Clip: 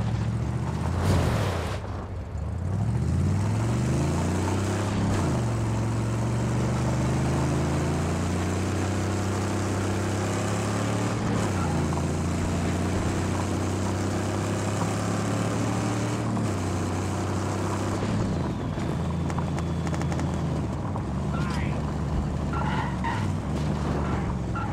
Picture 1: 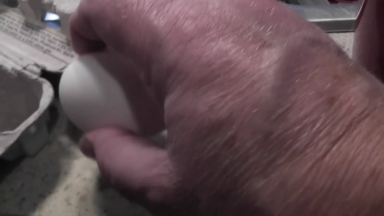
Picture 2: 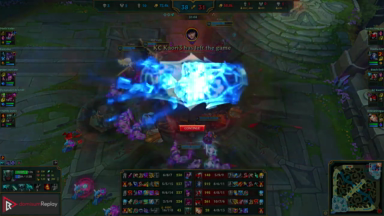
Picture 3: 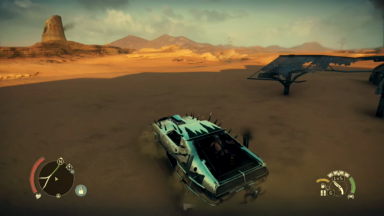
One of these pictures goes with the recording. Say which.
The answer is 3